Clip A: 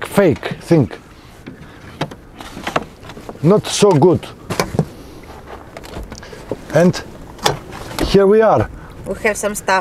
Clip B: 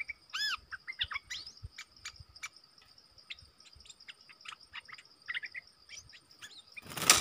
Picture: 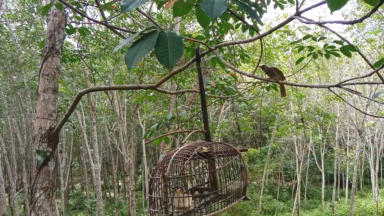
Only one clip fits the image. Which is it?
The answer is B